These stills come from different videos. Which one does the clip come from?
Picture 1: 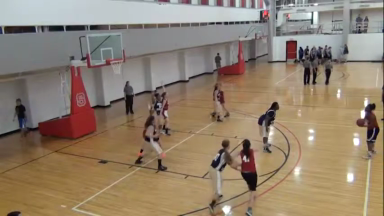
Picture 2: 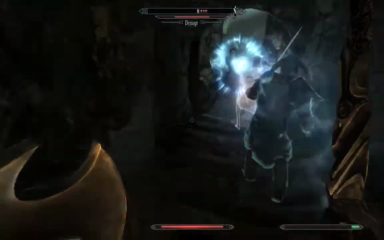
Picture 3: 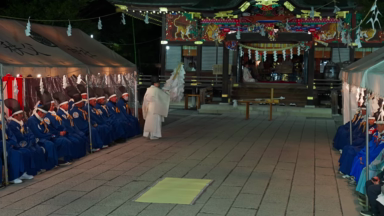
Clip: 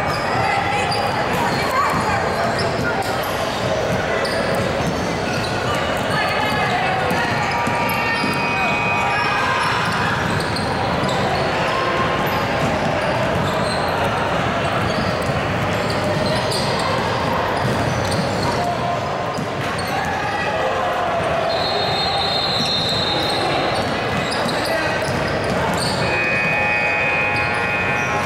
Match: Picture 1